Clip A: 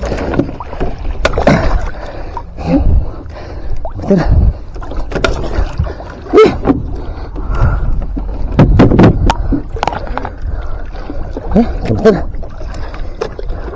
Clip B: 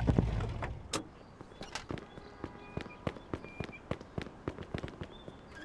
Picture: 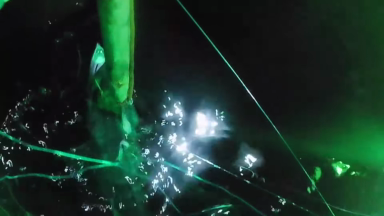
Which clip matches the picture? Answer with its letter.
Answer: A